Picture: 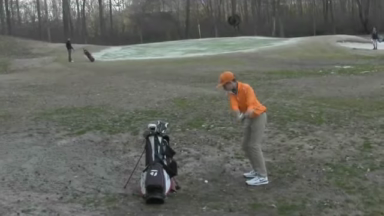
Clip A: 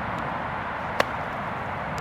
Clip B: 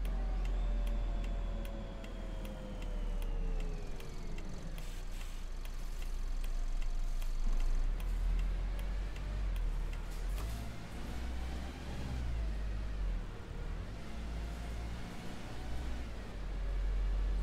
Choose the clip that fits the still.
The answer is A